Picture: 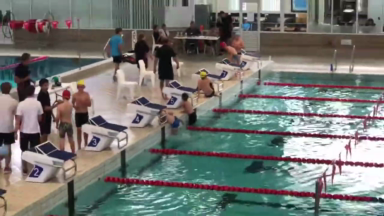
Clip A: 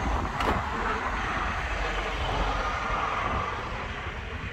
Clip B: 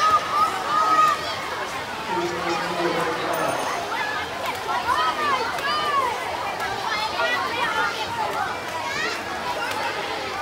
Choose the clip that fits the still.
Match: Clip B